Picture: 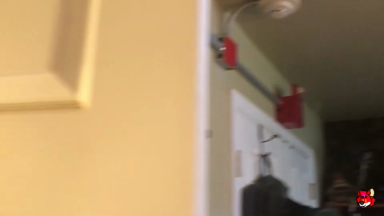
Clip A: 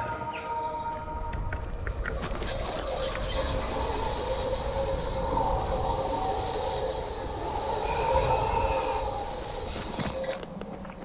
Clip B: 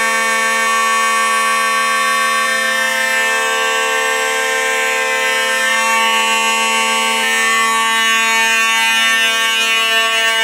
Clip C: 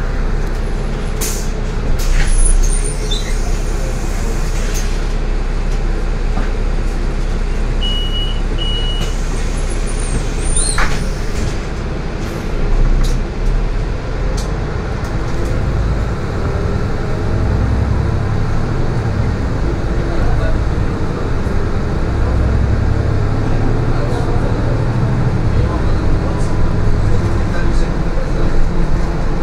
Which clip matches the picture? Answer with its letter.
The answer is B